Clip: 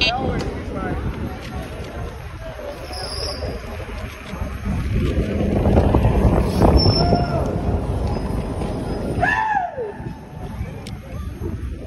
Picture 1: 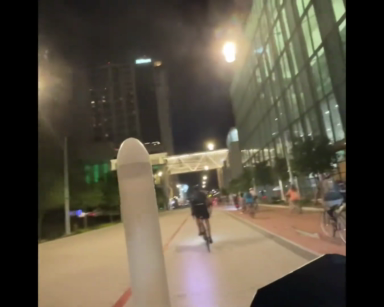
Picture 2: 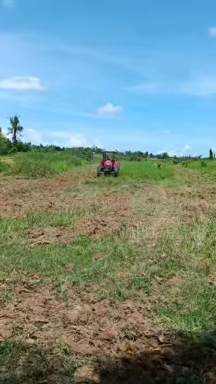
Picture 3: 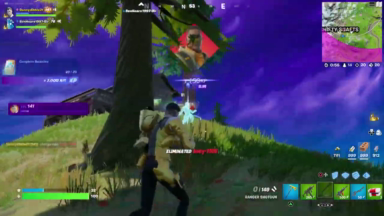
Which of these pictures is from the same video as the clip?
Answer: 1